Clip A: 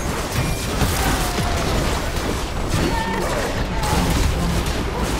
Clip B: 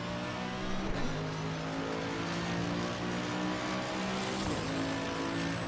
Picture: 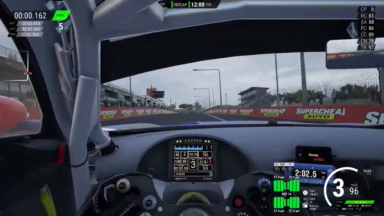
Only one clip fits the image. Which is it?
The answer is B